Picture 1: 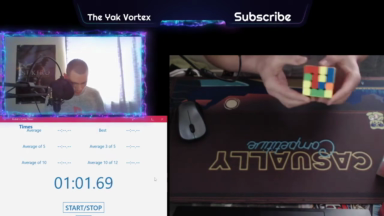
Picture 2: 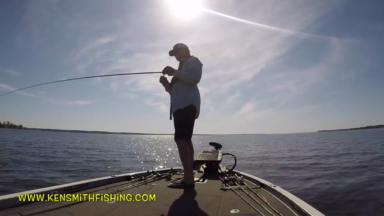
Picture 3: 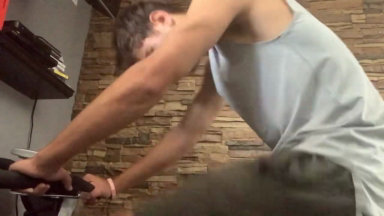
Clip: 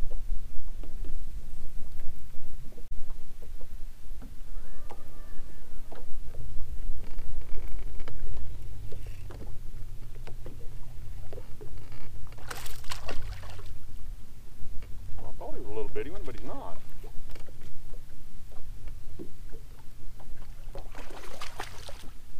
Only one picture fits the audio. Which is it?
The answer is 2